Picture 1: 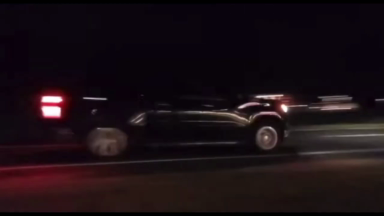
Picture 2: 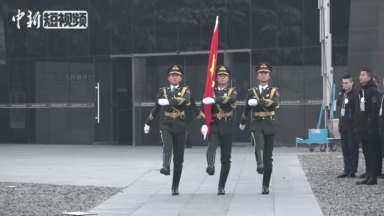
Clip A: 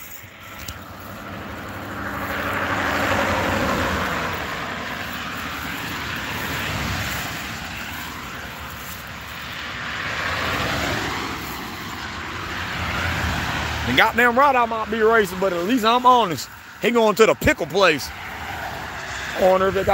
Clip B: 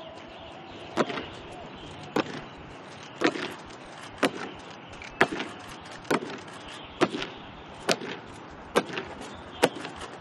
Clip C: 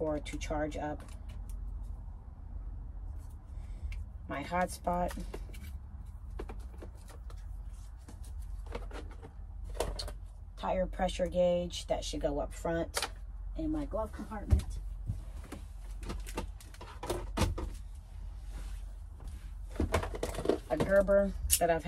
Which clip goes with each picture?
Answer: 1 A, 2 B